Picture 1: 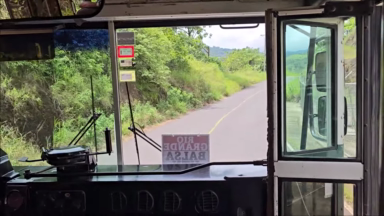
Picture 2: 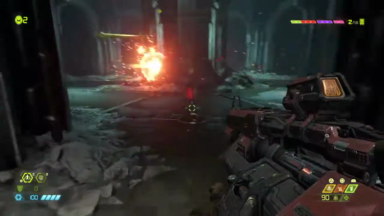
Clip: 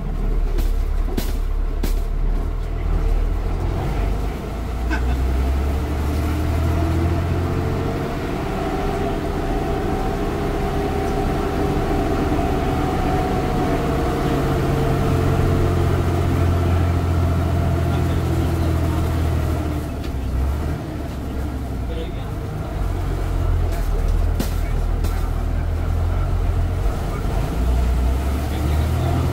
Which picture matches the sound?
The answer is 1